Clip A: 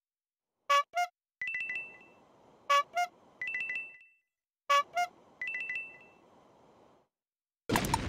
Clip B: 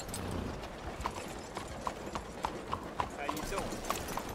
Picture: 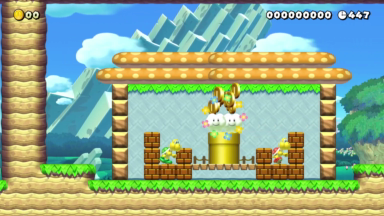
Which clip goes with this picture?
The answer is A